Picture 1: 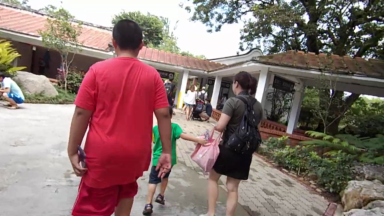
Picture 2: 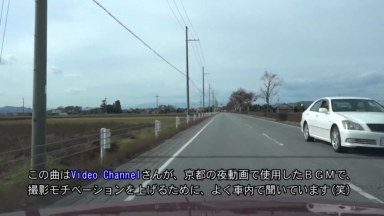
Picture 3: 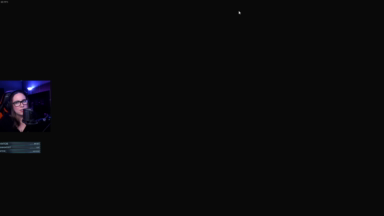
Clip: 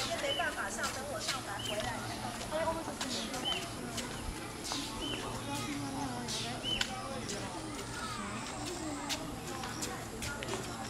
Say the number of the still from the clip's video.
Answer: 1